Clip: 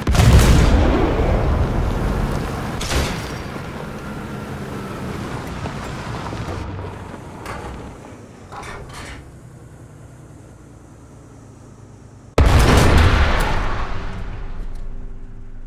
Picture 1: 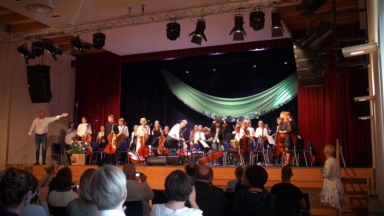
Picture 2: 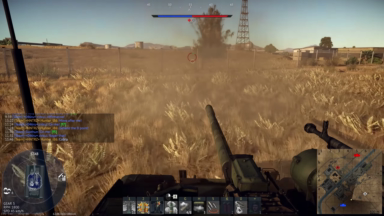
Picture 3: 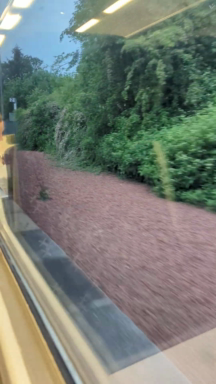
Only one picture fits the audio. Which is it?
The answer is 2